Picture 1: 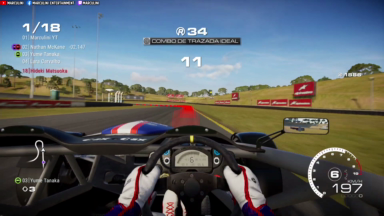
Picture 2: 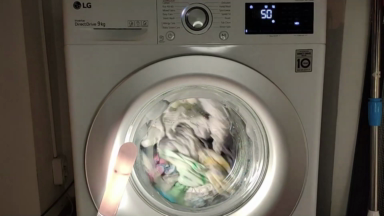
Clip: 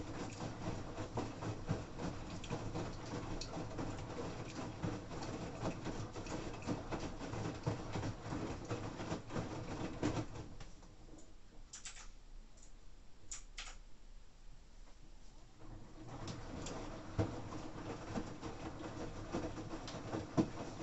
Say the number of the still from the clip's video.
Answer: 2